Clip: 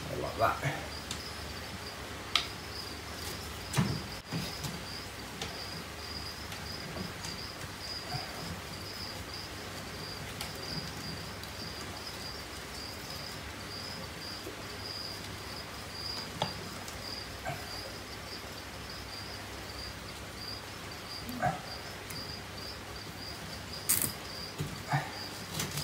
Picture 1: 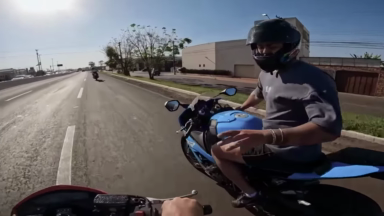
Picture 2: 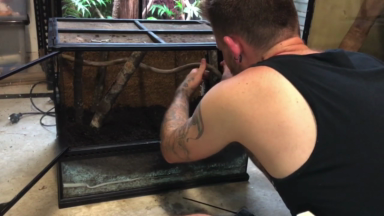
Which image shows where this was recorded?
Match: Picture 2